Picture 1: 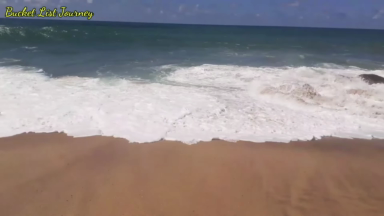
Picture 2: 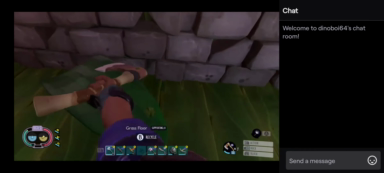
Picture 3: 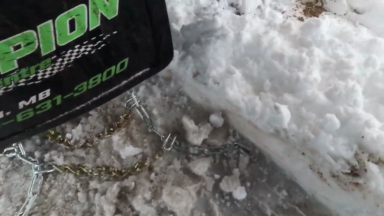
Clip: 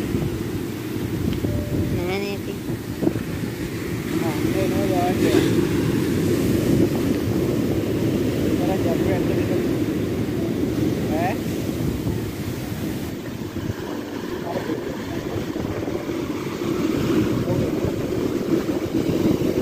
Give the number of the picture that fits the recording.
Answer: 1